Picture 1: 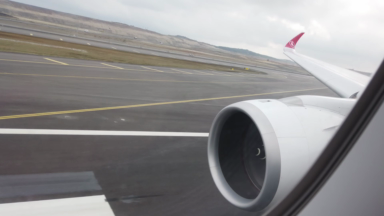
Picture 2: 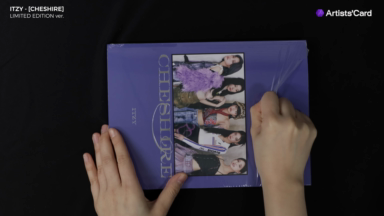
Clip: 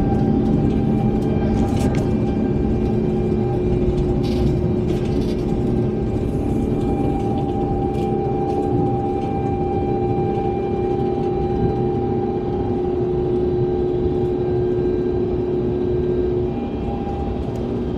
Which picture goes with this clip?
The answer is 1